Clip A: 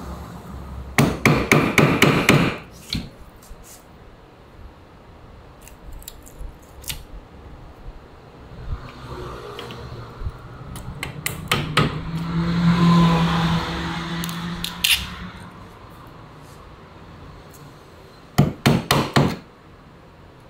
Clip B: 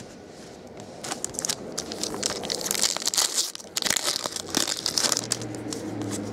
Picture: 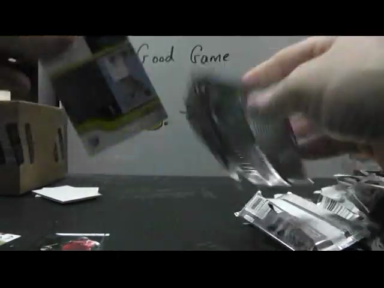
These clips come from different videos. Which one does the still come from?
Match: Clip B